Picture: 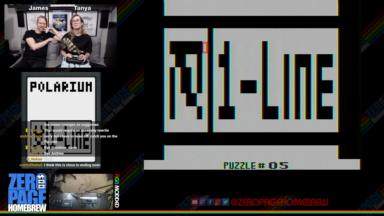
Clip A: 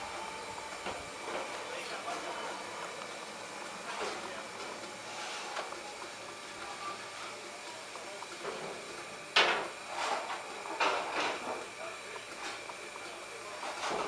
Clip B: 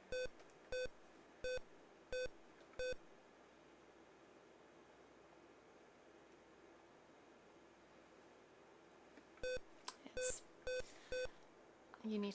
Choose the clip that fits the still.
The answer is B